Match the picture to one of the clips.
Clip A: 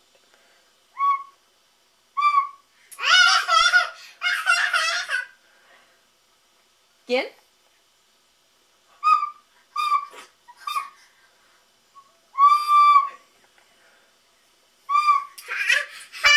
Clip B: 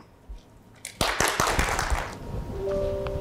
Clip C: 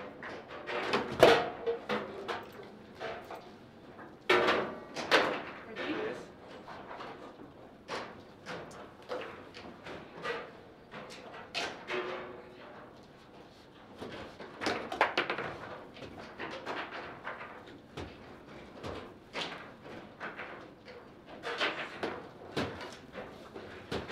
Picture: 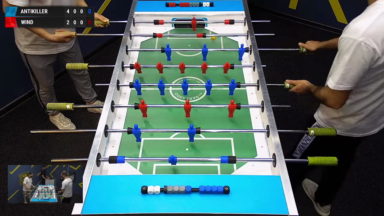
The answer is C